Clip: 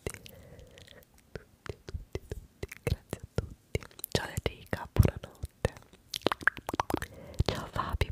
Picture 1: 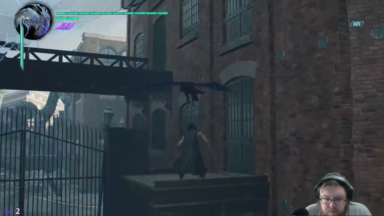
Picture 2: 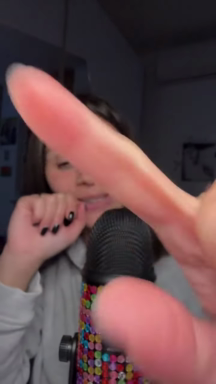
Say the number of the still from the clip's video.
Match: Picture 2